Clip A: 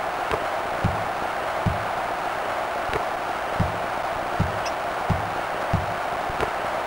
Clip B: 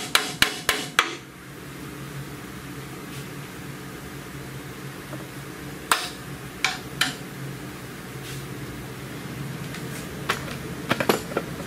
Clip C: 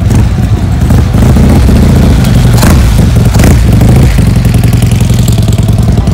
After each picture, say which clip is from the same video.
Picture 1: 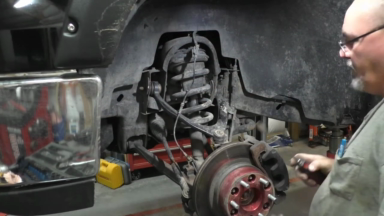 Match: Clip B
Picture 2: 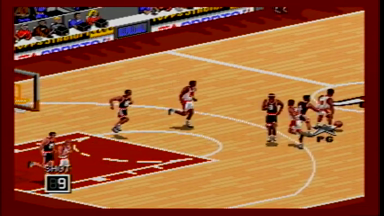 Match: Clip A